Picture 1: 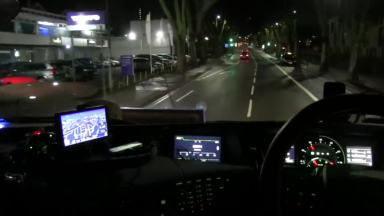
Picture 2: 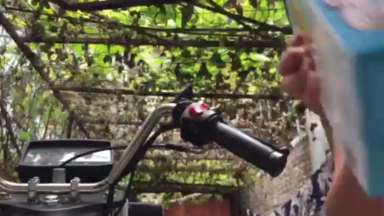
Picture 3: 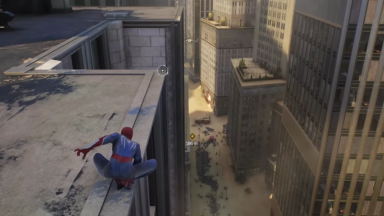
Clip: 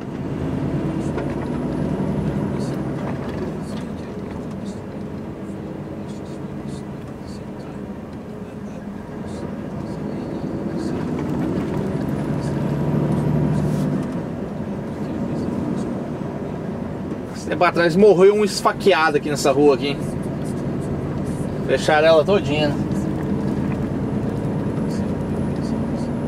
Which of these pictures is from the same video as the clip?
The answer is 1